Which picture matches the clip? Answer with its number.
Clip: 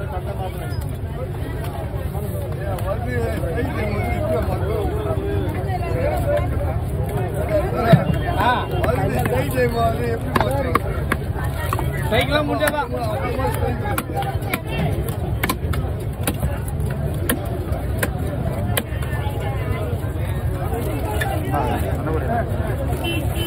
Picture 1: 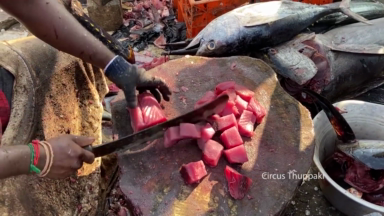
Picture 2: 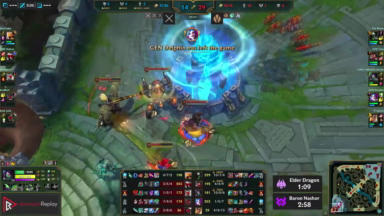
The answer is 1